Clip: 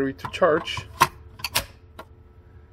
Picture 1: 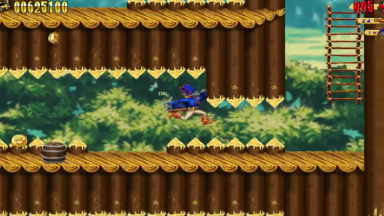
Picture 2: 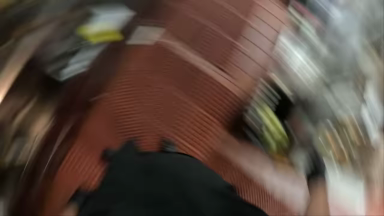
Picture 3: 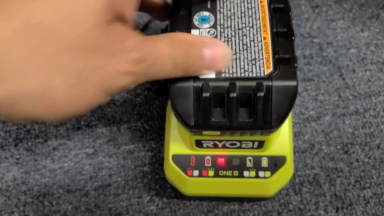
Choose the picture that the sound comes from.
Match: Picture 3